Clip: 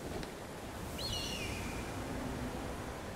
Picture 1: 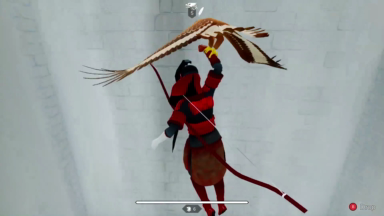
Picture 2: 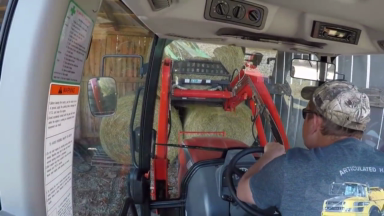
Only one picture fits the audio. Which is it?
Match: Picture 1